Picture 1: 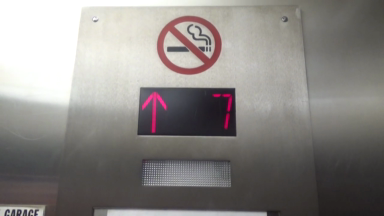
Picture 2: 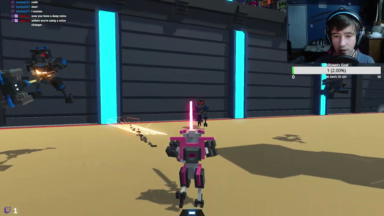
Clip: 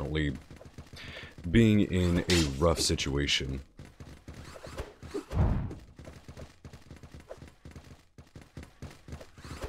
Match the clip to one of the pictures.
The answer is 2